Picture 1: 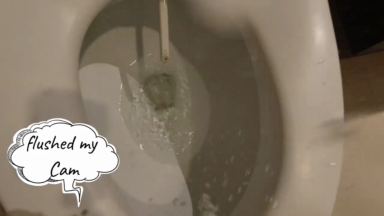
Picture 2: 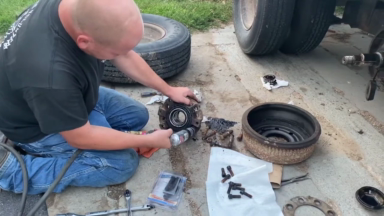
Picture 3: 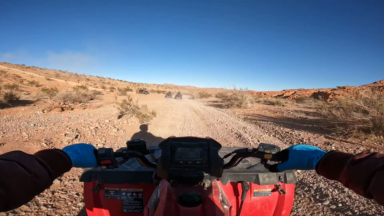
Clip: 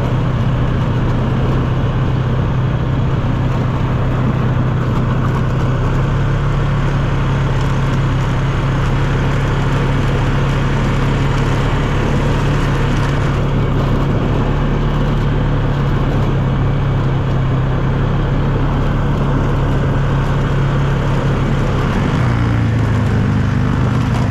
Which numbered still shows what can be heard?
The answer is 3